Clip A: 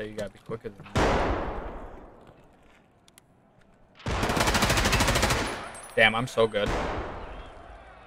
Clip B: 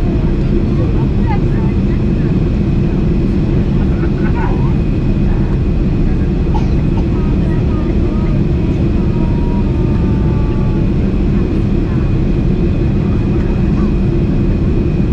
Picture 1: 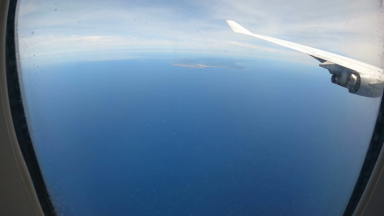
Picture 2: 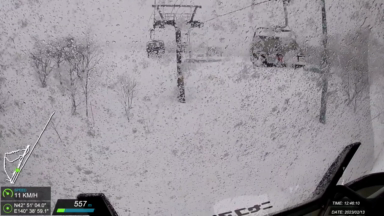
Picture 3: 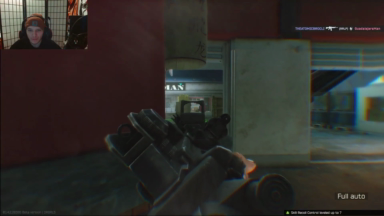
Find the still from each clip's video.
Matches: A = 3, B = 1